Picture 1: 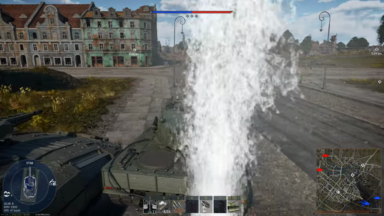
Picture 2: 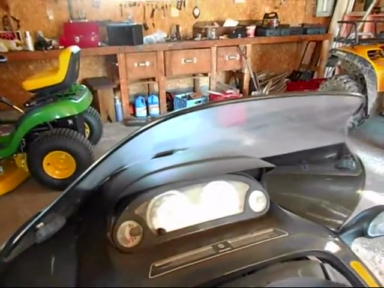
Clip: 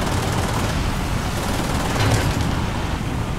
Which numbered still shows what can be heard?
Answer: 1